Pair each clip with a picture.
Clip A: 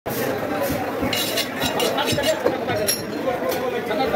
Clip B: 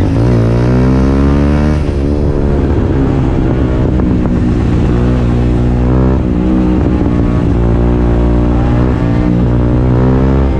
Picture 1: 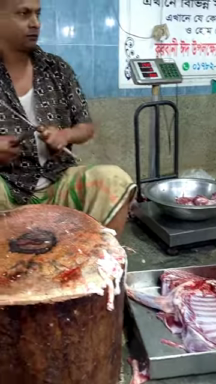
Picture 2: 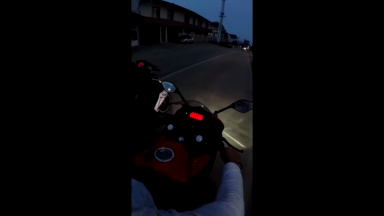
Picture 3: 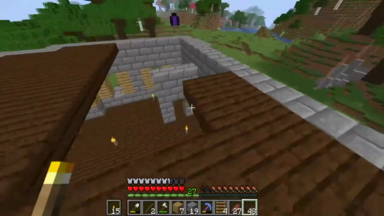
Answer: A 1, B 2